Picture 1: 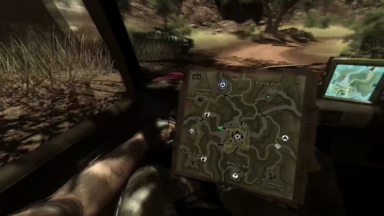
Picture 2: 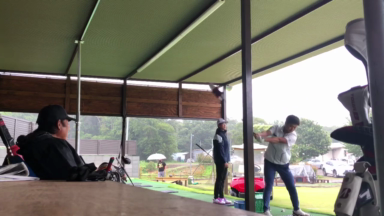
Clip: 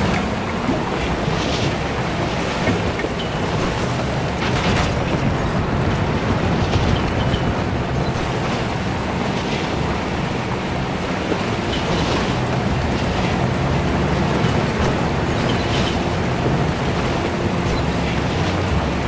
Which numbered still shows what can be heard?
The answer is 1